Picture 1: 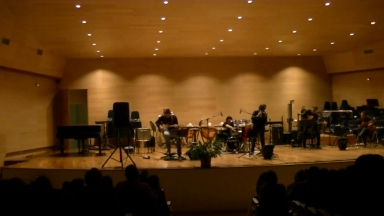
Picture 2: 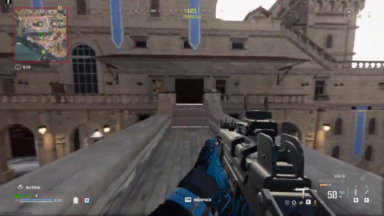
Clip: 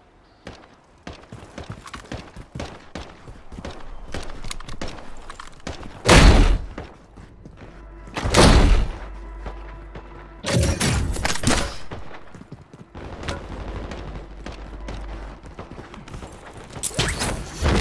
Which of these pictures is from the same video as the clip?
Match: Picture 2